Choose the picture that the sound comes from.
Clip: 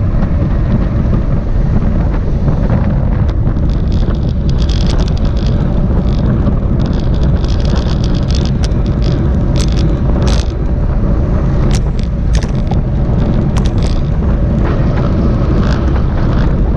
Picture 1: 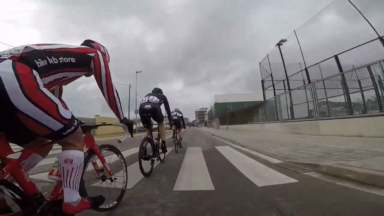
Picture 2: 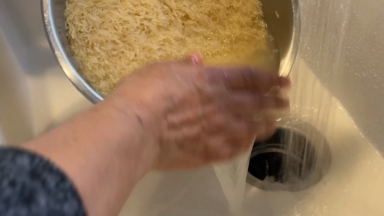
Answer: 1